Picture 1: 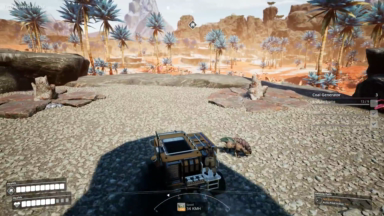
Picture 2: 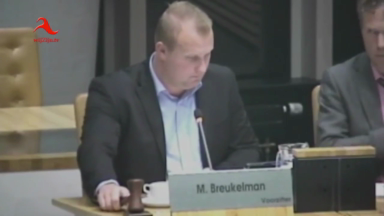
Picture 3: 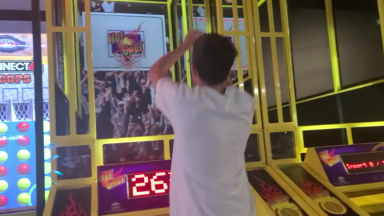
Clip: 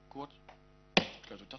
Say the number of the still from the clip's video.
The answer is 2